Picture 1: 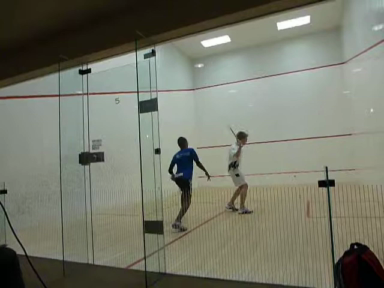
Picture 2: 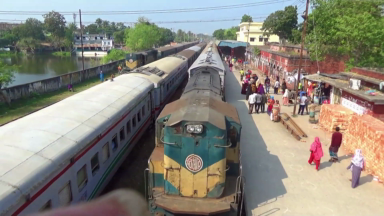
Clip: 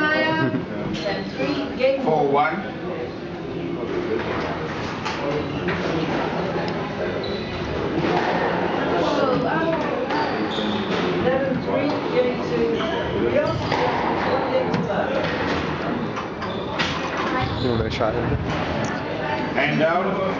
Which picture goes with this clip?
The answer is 1